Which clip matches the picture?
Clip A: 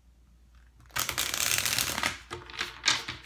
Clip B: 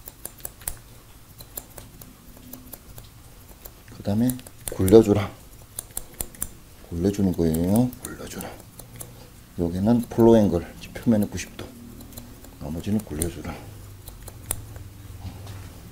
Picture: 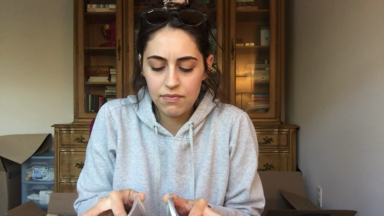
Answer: A